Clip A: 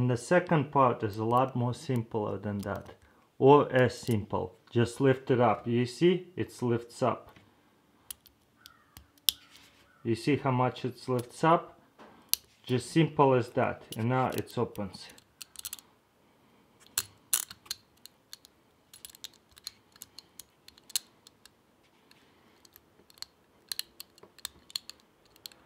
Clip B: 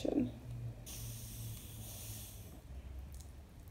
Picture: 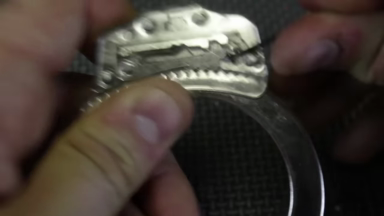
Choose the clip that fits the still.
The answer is A